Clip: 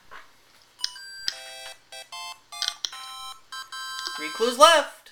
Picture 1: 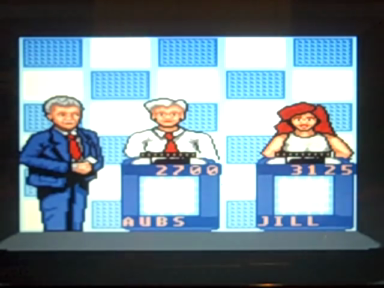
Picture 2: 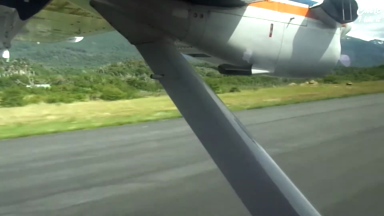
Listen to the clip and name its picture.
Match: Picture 1